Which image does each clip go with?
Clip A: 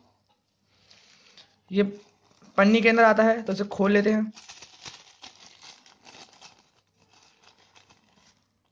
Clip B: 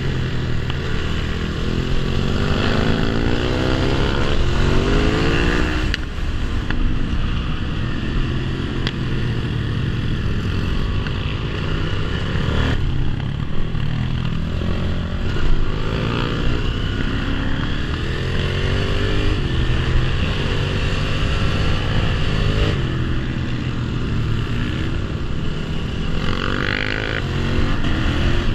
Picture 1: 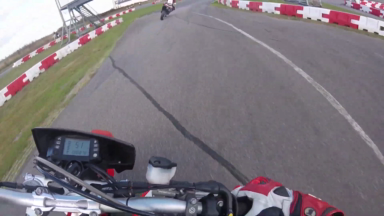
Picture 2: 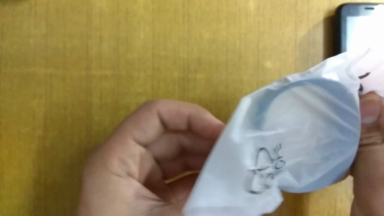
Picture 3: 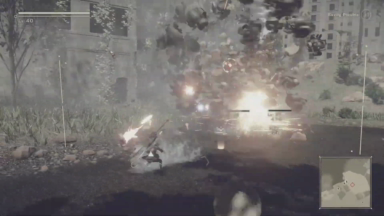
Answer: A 2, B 1